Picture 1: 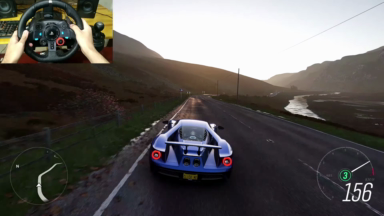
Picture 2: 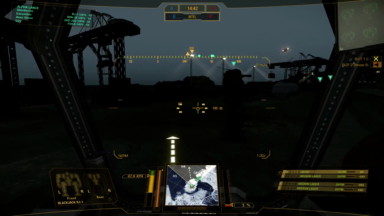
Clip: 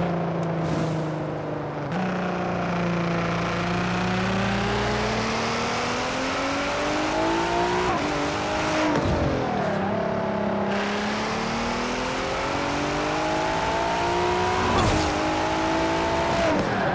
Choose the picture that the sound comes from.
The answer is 1